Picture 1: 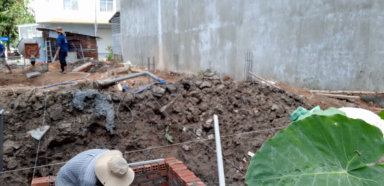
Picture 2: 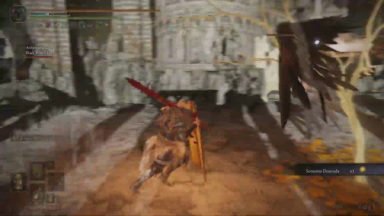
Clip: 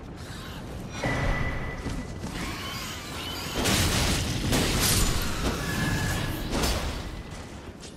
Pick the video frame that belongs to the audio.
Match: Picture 2